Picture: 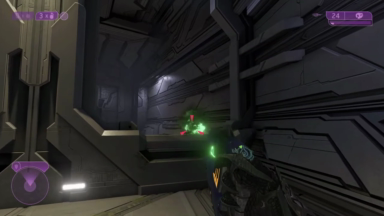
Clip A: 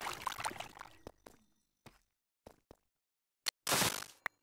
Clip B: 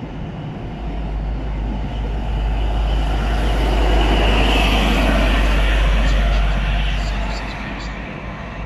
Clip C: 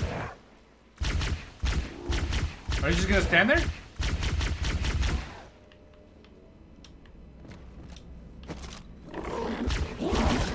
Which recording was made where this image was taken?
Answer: C